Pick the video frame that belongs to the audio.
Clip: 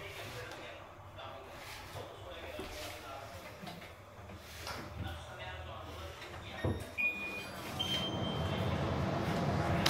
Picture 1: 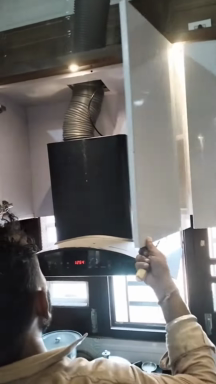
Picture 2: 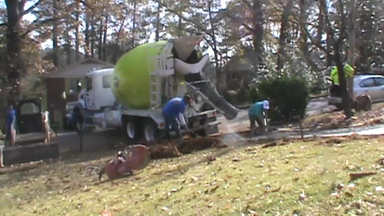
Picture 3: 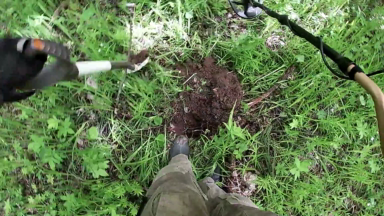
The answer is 1